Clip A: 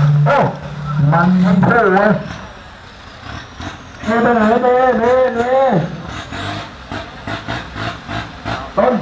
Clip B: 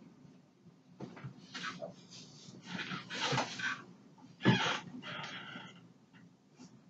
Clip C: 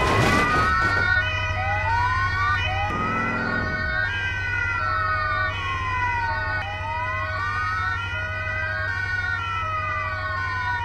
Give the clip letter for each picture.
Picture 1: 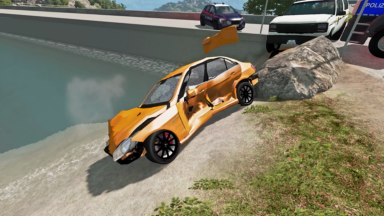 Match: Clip C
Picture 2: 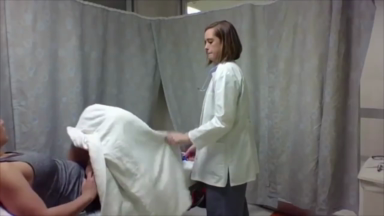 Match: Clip B